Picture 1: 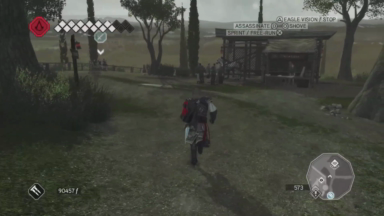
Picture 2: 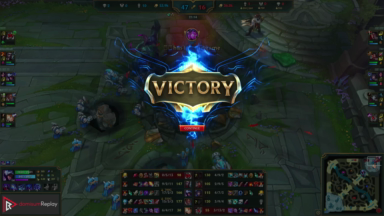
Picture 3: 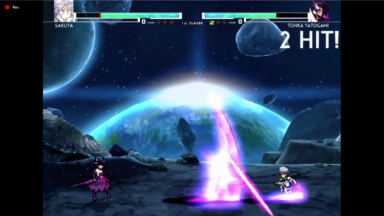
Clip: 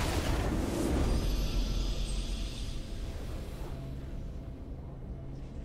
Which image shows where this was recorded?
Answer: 2